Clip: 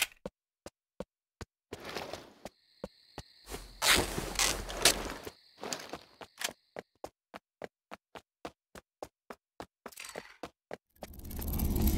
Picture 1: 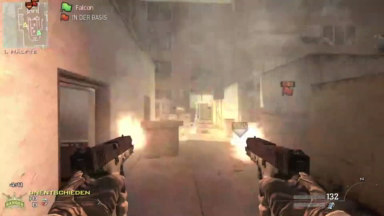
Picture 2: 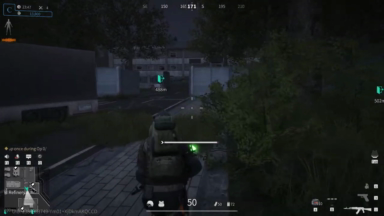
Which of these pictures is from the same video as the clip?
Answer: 2